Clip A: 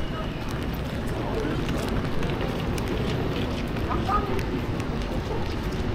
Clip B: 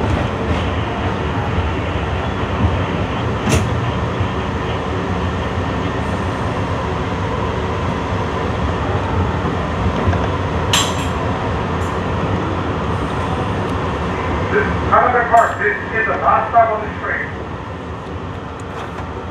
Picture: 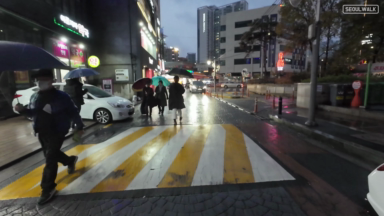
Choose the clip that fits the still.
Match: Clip A